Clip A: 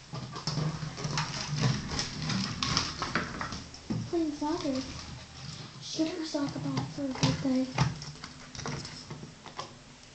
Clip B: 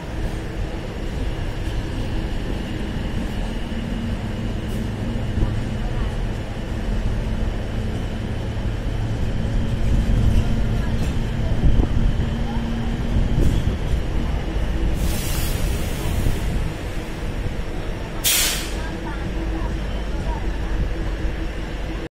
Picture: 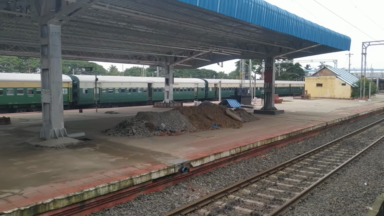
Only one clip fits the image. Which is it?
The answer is B